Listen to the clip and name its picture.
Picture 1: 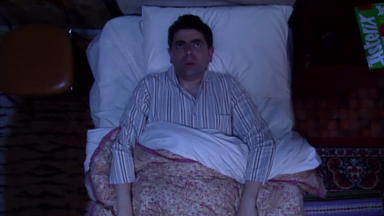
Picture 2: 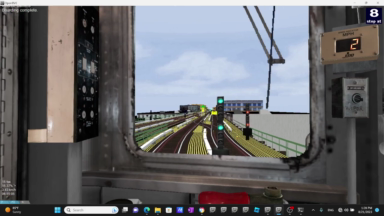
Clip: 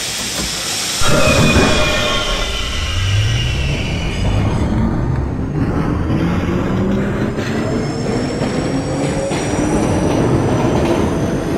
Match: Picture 2